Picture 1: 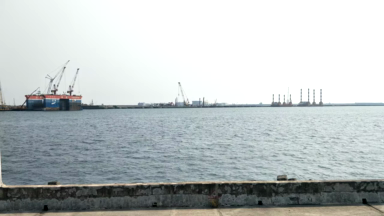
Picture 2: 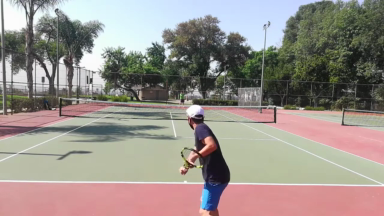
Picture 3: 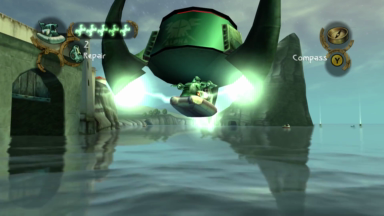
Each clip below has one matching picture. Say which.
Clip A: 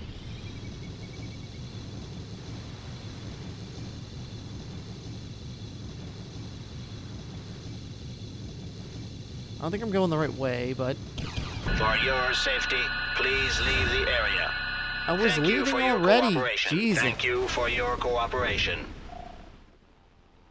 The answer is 3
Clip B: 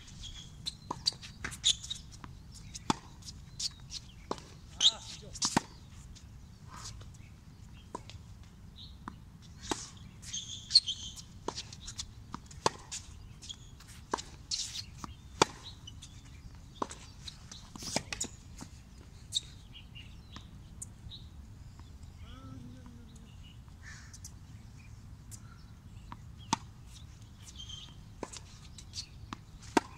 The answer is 2